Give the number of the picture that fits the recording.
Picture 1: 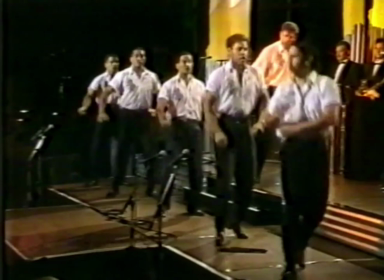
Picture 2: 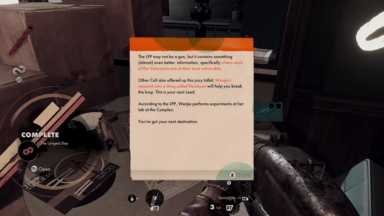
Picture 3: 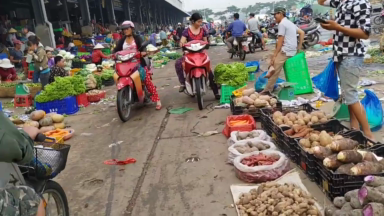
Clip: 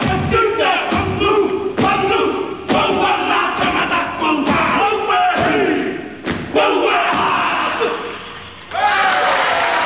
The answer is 1